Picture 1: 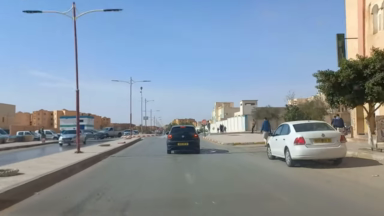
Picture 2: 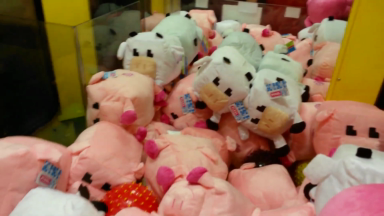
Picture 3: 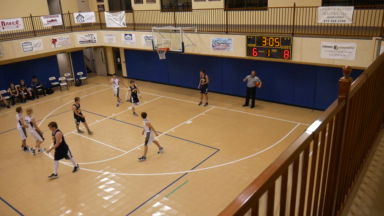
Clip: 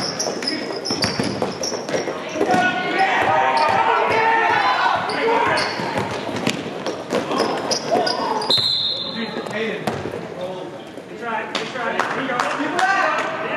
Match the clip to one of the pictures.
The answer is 3